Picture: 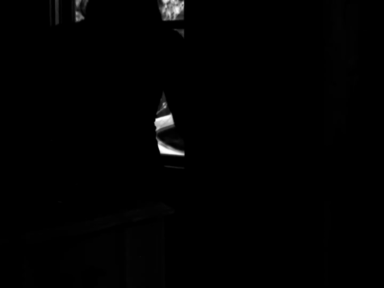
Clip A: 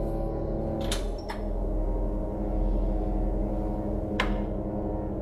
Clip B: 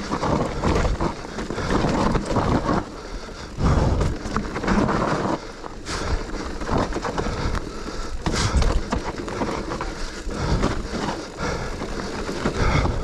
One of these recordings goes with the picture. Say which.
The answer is A